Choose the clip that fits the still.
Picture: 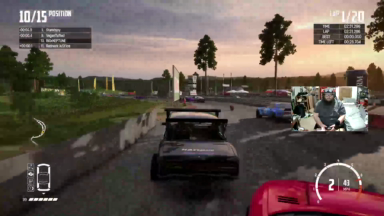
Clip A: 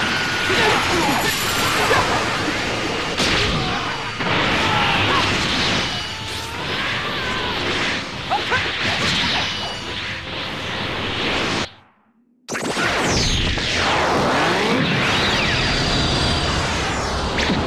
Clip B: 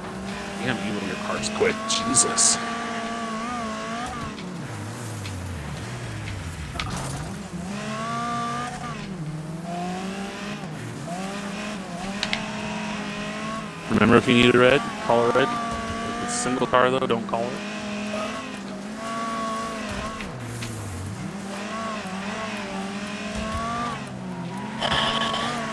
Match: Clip B